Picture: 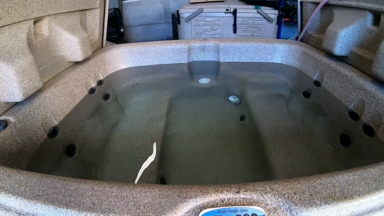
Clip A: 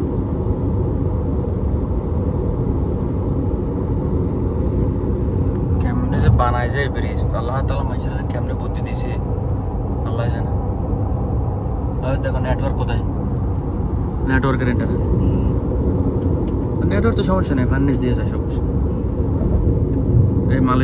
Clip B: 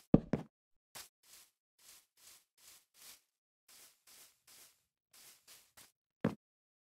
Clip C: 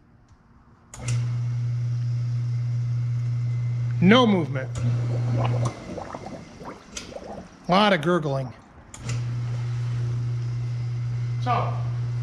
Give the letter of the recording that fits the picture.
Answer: C